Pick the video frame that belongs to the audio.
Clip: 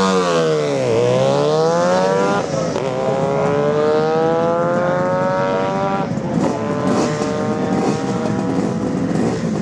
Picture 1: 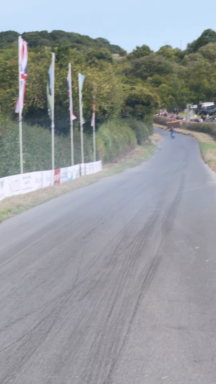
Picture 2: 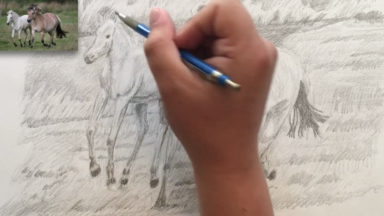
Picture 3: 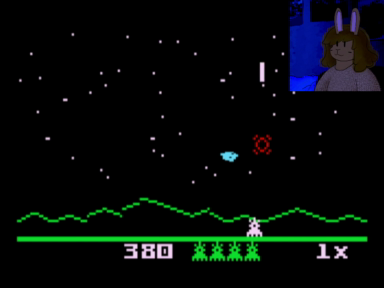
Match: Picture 1